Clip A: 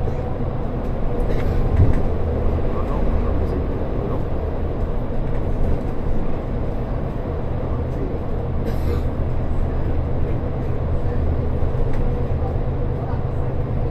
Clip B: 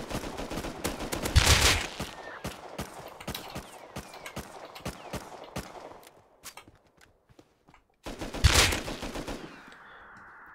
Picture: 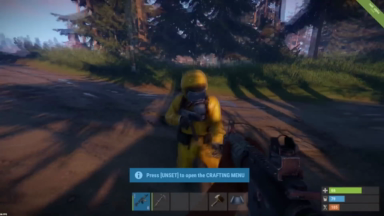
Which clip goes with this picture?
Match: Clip B